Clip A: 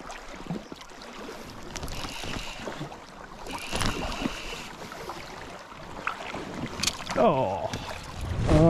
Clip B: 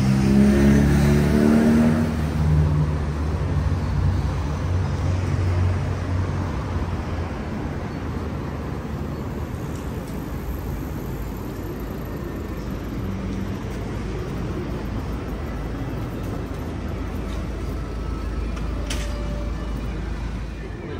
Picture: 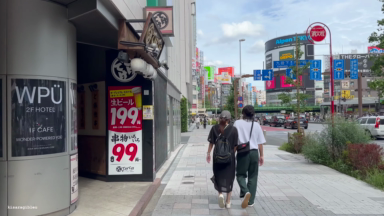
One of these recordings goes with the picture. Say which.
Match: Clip B